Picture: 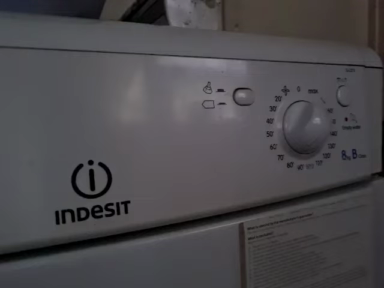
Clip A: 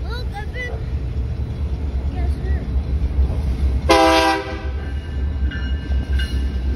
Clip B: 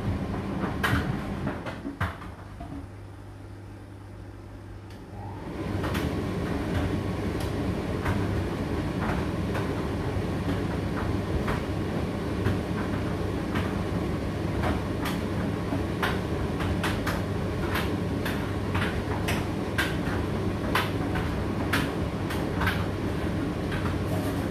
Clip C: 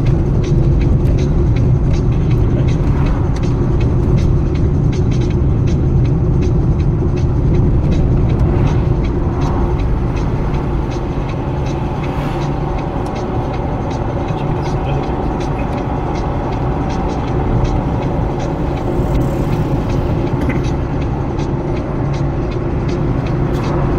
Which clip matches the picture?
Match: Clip B